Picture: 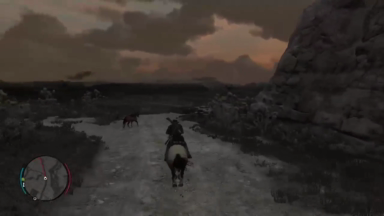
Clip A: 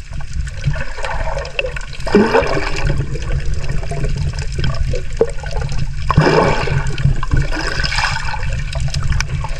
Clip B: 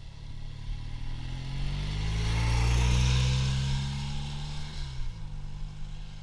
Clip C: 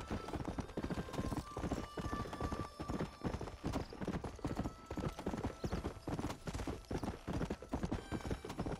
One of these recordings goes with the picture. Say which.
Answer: C